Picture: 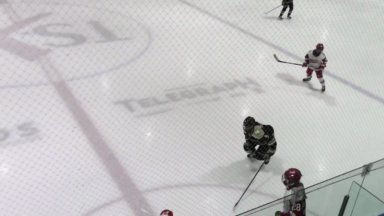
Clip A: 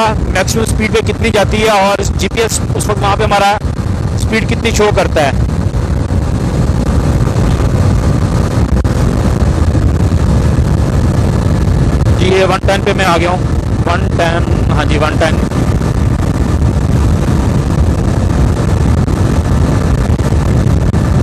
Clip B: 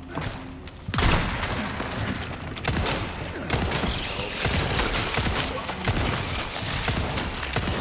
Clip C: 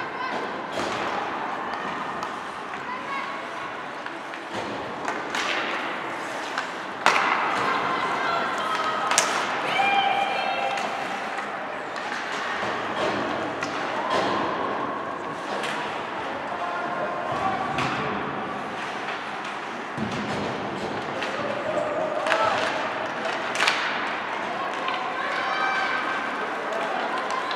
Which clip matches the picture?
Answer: C